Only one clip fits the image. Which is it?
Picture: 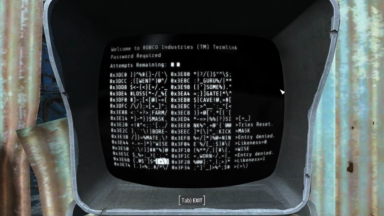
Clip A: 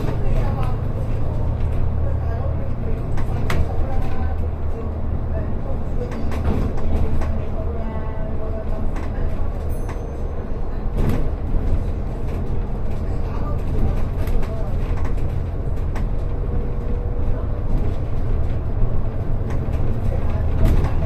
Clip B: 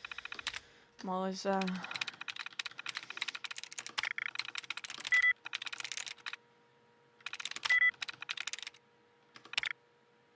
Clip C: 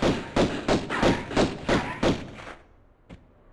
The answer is B